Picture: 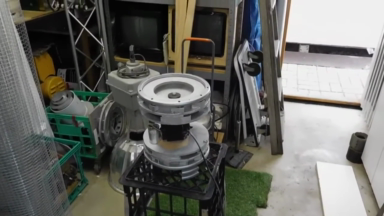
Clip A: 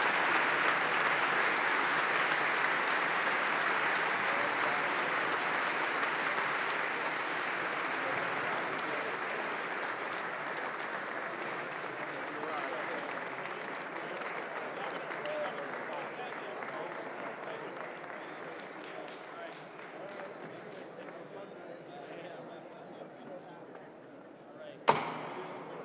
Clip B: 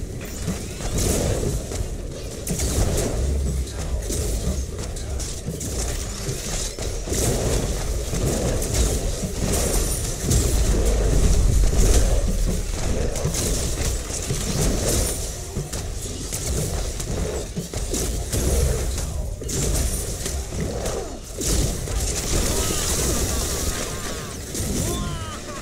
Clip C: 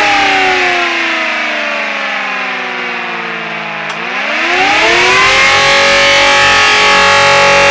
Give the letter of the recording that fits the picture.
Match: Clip C